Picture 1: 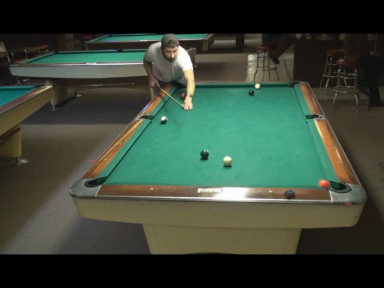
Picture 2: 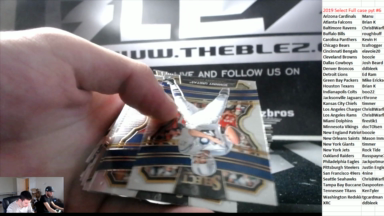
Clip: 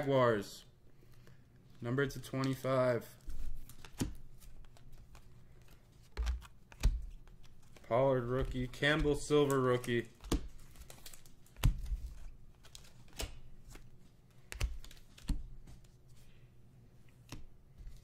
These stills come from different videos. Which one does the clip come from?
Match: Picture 2